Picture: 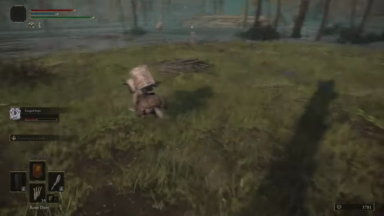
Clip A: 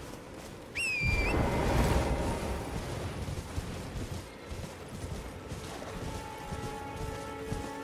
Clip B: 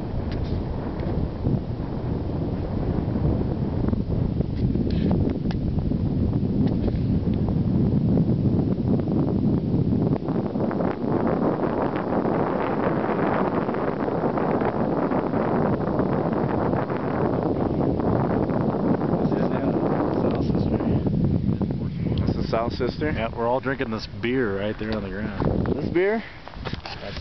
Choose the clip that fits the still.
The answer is A